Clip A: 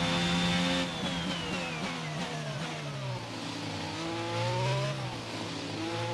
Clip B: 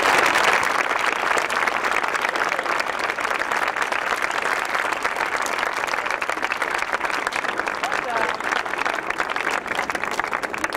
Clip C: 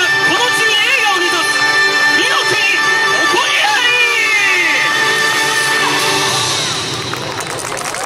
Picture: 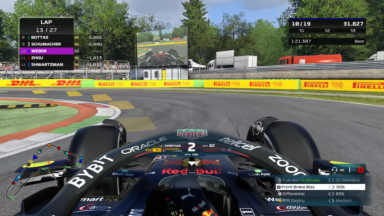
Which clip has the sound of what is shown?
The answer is A